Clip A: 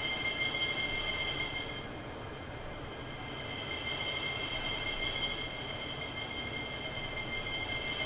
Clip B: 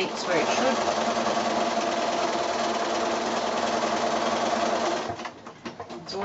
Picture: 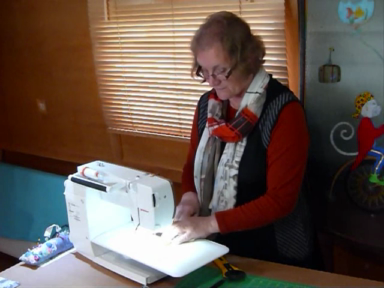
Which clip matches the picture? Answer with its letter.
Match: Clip B